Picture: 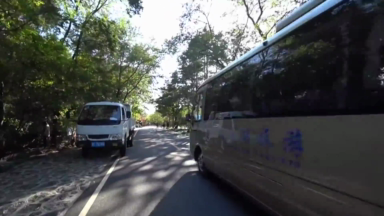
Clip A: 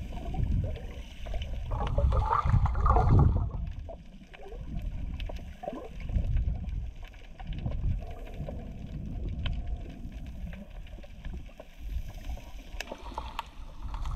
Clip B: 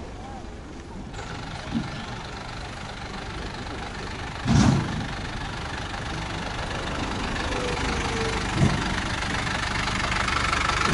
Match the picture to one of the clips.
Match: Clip B